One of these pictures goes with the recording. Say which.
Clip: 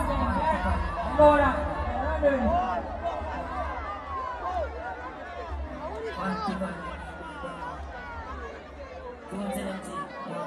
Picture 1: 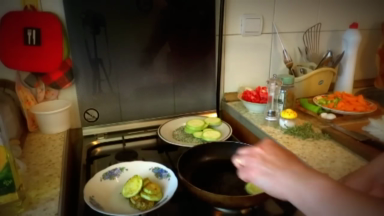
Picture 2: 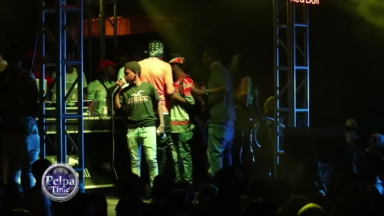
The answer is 2